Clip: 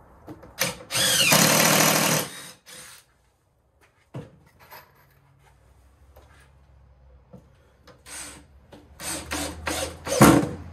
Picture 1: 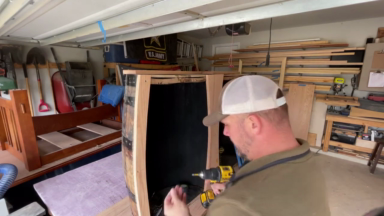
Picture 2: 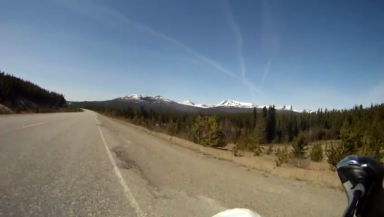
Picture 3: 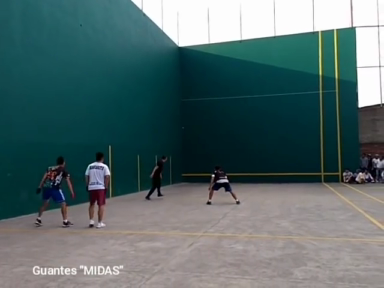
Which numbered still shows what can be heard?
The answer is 1